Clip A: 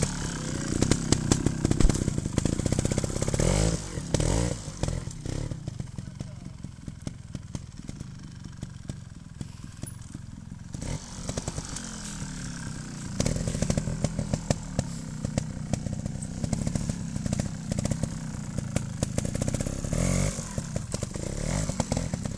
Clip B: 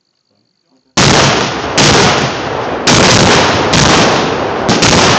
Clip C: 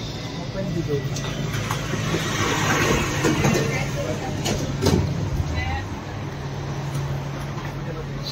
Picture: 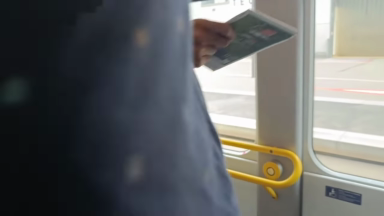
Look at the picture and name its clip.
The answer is C